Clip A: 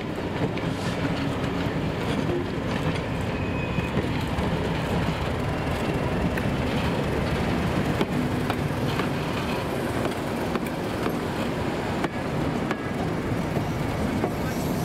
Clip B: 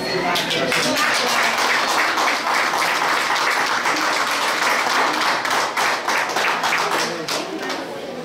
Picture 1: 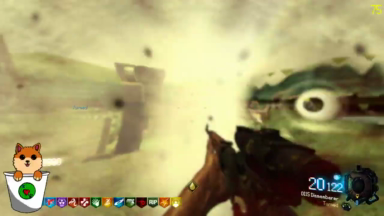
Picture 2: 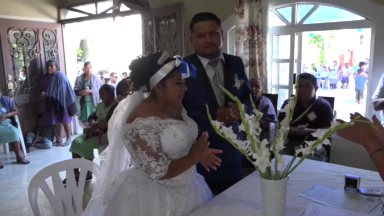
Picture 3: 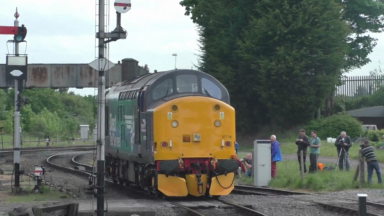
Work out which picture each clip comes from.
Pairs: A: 3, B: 2